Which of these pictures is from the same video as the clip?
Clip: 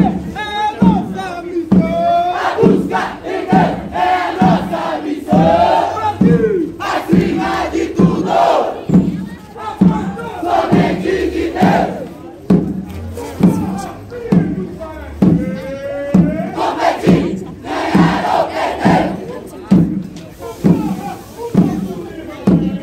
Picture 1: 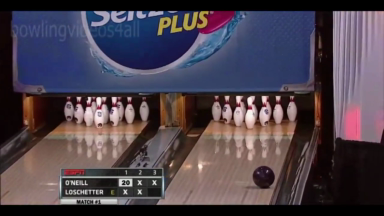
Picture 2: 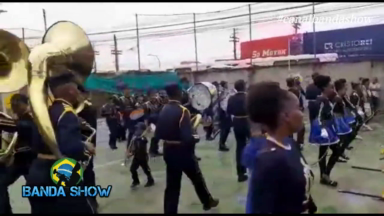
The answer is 2